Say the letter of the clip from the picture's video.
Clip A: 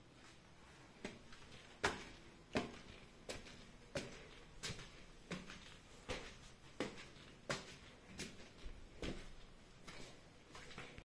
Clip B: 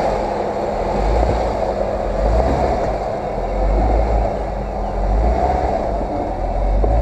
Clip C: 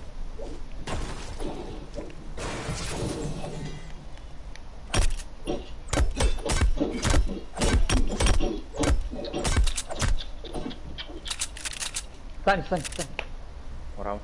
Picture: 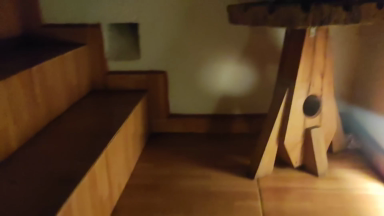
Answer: A